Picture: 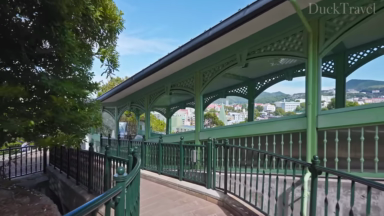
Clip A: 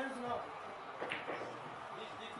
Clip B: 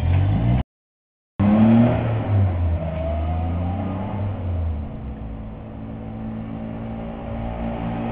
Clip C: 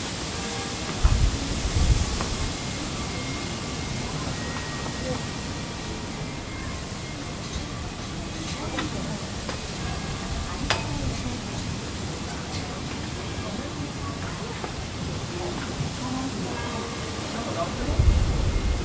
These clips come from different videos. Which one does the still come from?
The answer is C